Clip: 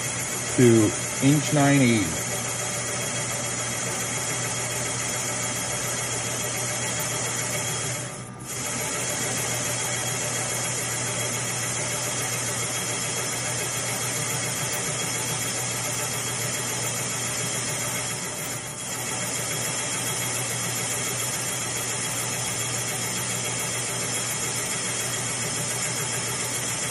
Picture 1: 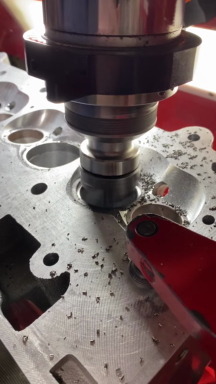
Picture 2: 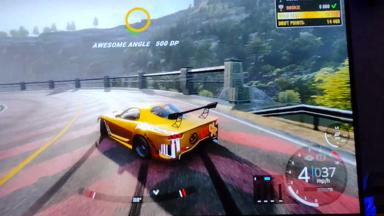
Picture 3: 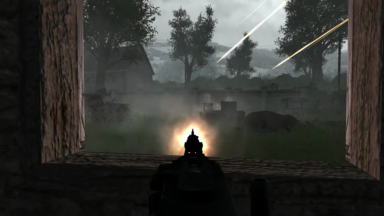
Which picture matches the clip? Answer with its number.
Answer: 1